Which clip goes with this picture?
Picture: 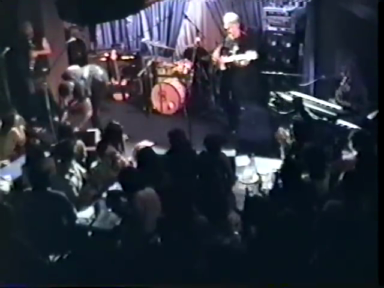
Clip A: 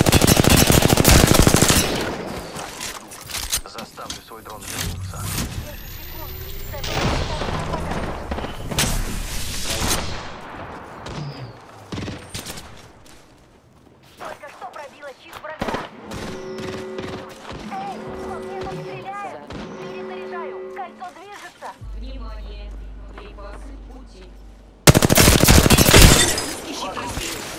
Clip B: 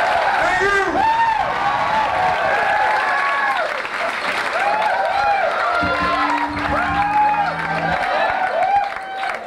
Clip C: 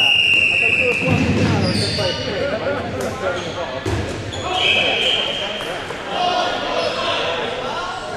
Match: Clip B